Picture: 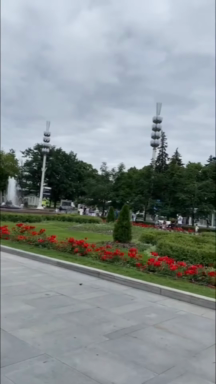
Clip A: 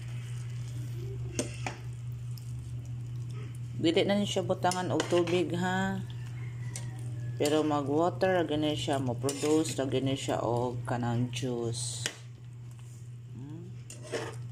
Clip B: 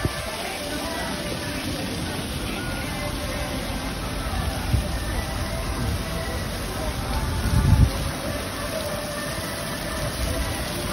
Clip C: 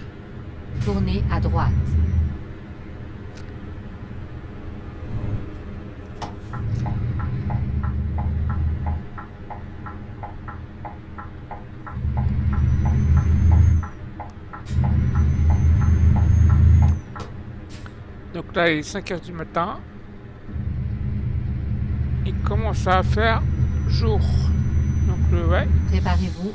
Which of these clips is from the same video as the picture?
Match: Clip B